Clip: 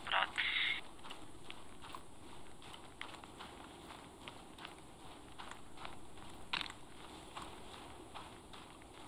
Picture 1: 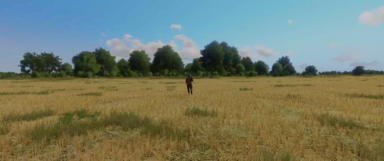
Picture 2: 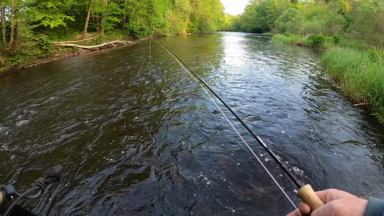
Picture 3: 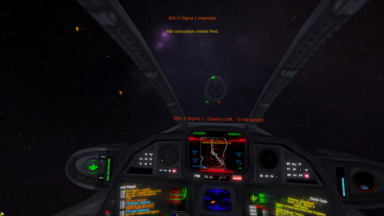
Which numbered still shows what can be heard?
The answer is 1